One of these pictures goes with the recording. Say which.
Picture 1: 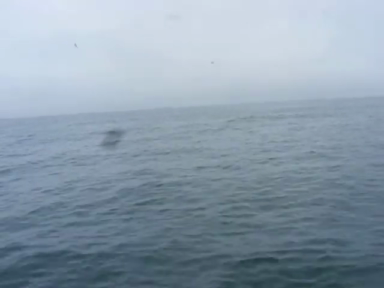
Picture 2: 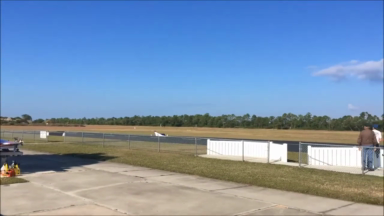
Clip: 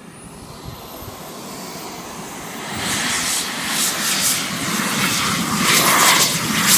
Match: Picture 2